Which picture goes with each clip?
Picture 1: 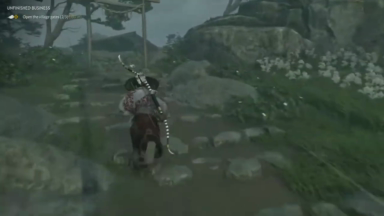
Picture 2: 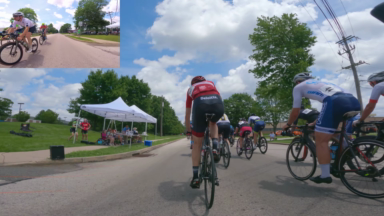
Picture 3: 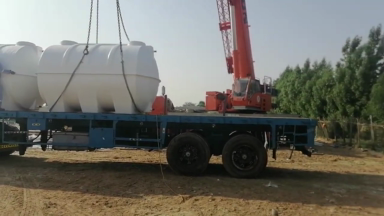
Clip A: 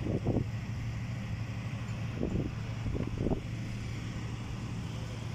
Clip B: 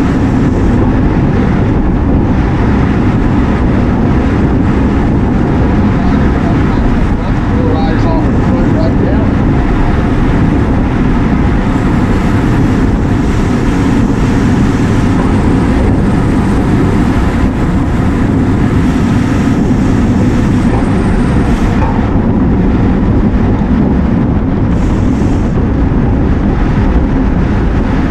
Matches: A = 3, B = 2